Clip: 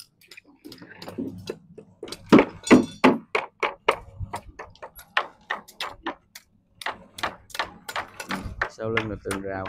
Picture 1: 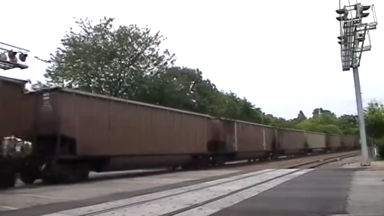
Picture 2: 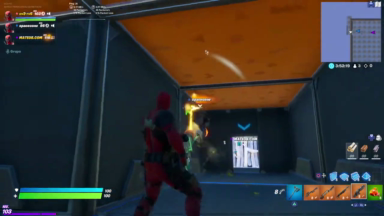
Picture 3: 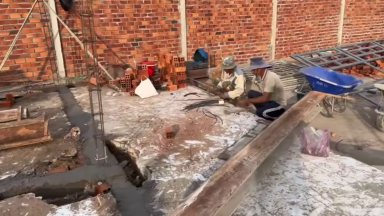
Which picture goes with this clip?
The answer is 3